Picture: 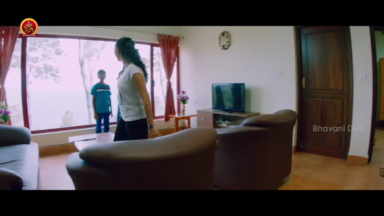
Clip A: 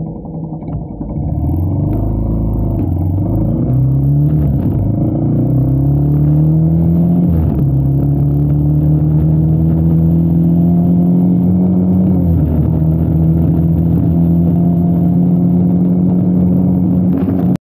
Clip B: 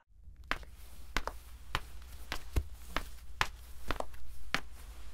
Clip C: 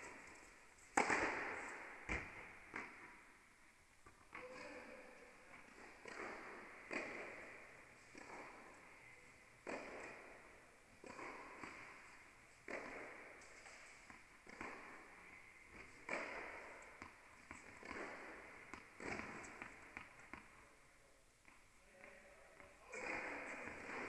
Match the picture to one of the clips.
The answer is B